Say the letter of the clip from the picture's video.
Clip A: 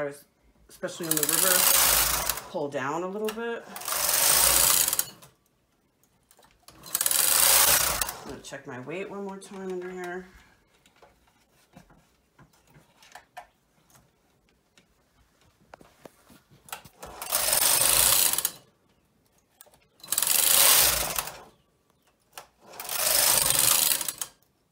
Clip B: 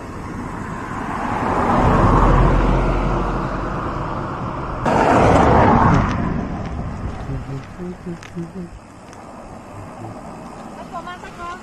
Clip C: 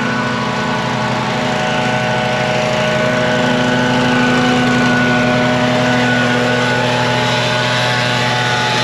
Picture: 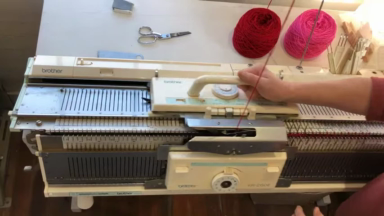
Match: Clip A